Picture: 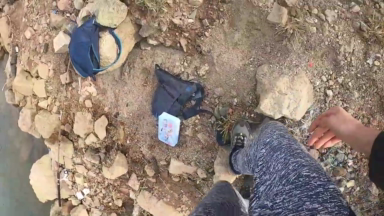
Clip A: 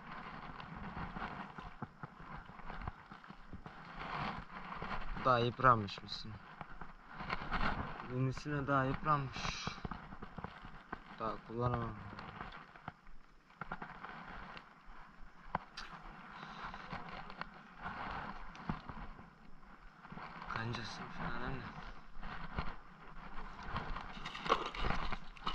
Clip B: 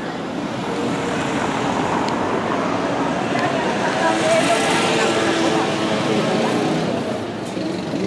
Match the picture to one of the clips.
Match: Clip A